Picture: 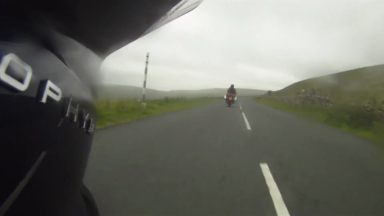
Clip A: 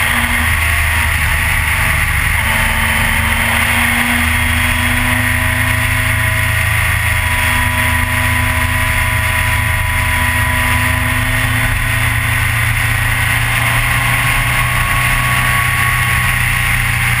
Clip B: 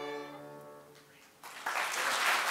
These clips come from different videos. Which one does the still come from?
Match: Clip A